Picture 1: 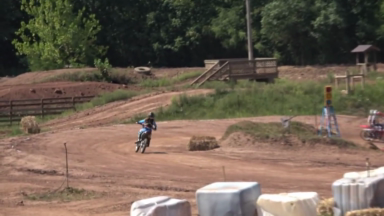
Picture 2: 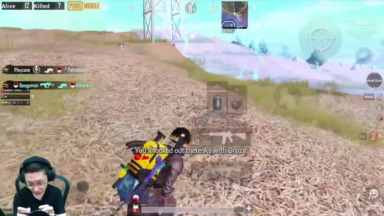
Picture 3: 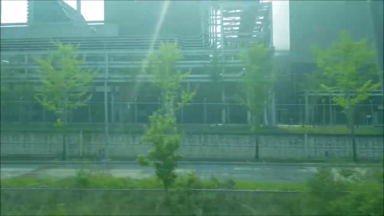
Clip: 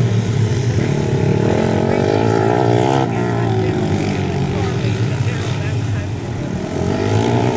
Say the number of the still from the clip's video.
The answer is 1